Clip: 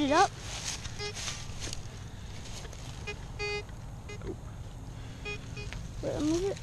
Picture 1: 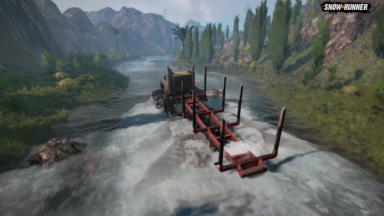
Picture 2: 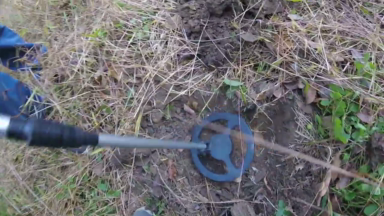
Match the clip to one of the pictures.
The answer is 2